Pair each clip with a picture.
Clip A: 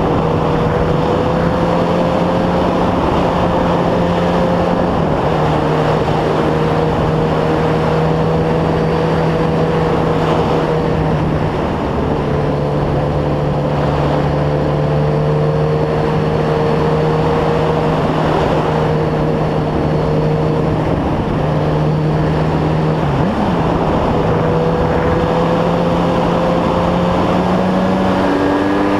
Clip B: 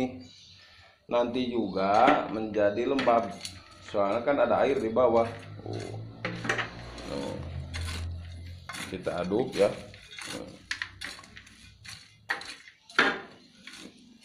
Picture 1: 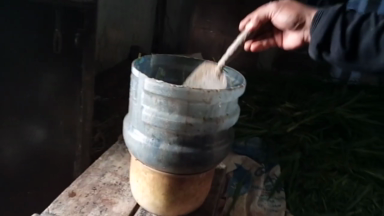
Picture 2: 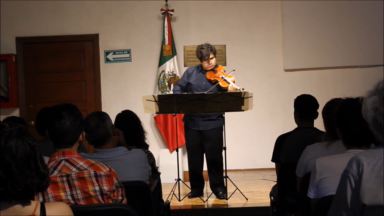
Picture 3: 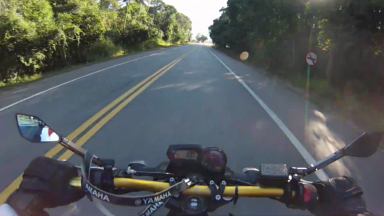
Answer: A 3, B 1